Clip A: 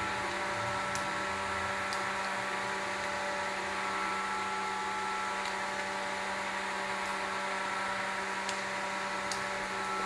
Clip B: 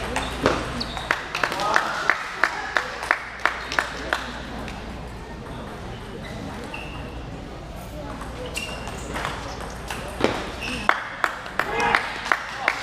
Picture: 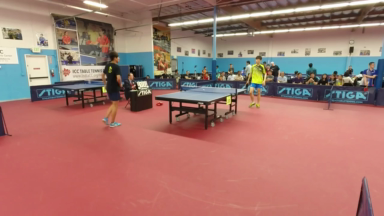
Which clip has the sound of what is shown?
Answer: B